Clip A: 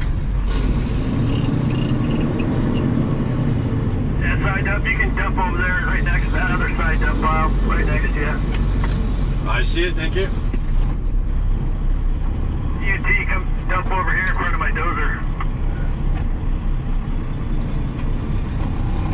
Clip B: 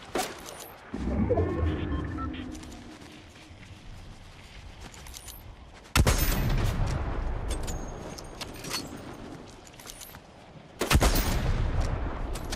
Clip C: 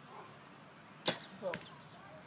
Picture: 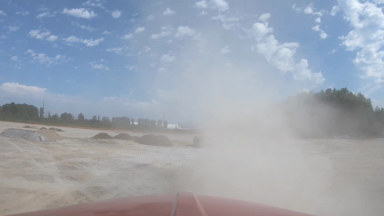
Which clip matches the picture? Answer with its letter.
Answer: A